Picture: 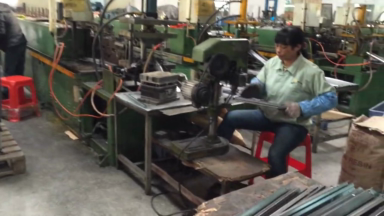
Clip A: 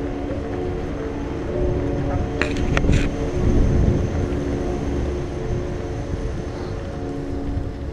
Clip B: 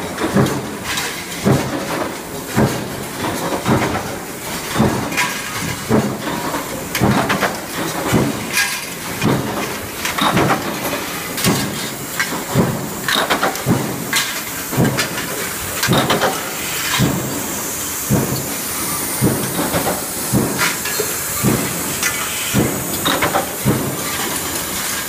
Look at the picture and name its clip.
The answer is B